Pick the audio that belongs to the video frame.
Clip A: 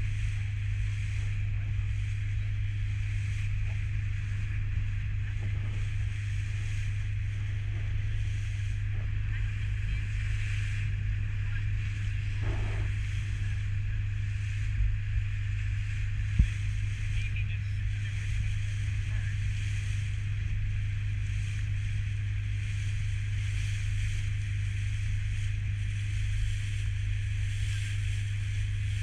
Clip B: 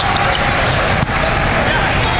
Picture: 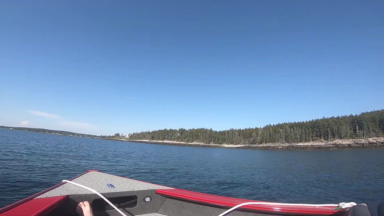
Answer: A